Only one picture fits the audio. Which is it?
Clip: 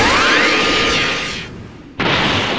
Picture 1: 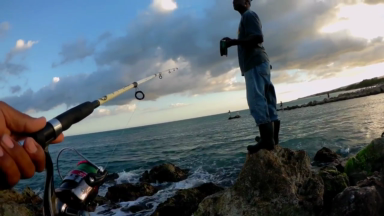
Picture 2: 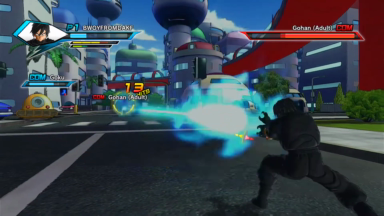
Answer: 2